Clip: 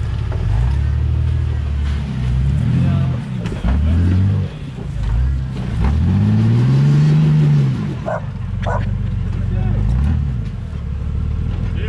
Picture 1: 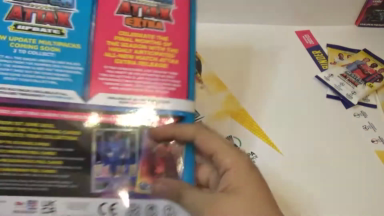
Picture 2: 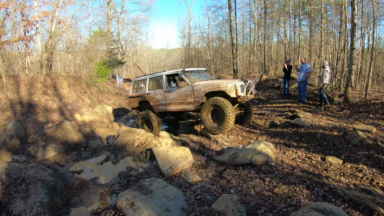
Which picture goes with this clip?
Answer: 2